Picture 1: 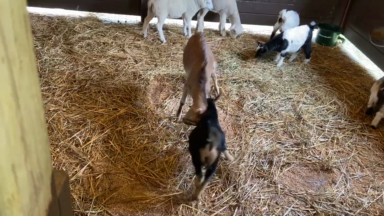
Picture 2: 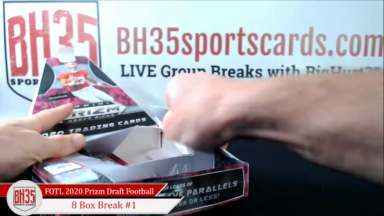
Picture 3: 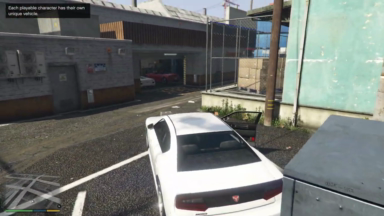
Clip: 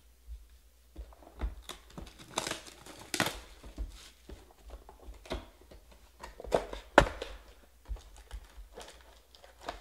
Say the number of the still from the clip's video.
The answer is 2